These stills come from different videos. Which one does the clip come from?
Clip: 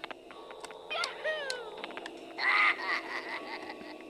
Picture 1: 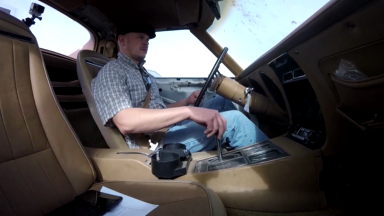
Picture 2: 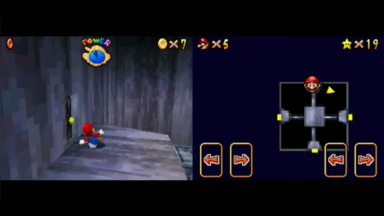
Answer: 2